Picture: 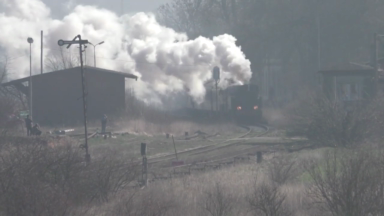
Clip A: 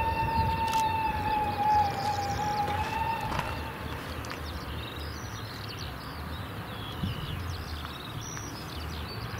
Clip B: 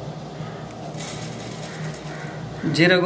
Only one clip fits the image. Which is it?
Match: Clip A